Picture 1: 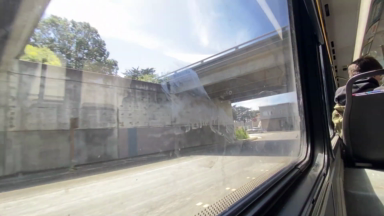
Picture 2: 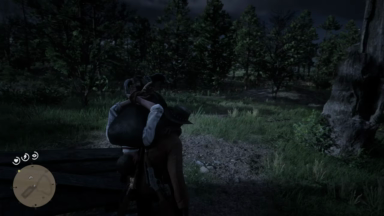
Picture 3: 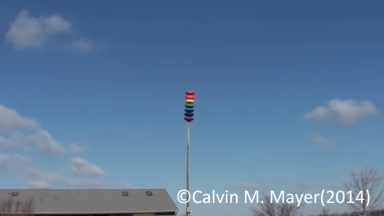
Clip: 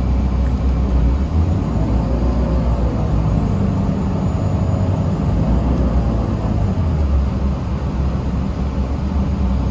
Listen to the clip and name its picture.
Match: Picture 1